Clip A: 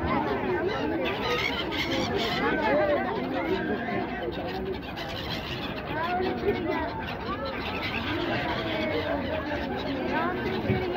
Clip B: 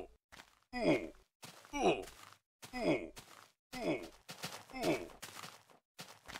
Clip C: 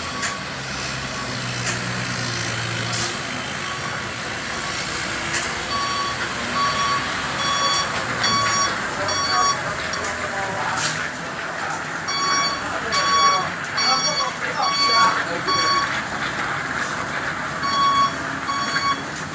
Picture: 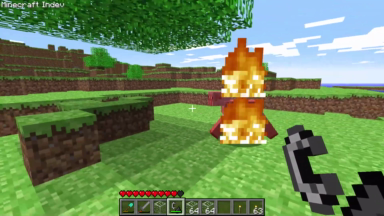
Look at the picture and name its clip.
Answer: B